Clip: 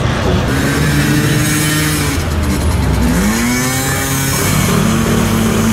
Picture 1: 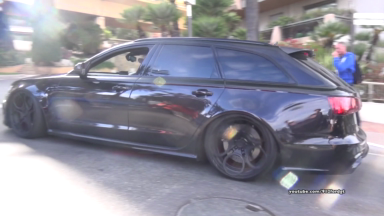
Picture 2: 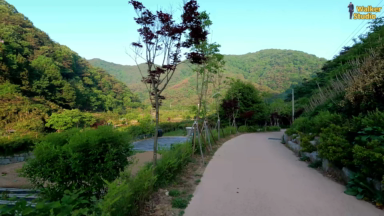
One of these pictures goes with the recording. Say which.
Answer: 1